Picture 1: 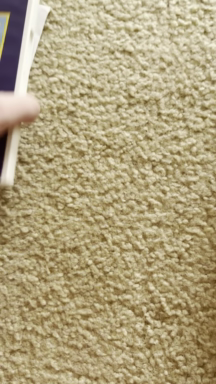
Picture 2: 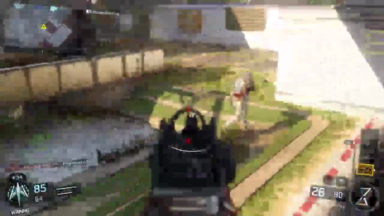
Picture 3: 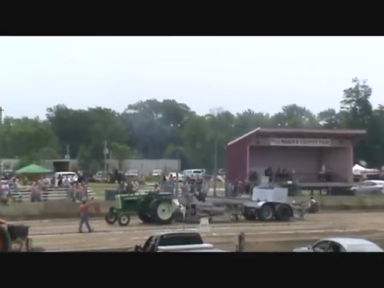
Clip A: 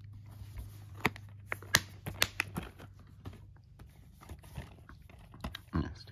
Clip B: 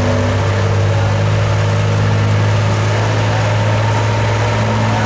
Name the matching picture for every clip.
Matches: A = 1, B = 3